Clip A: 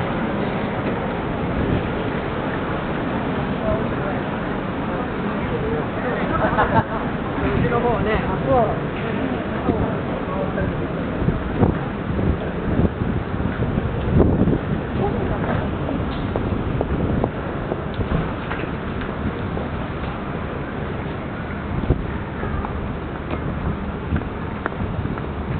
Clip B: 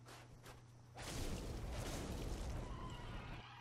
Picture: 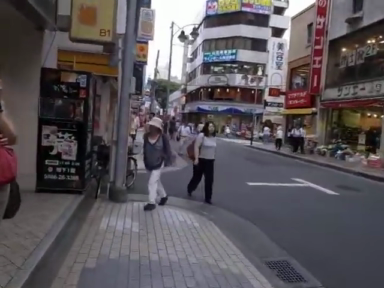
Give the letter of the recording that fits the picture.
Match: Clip A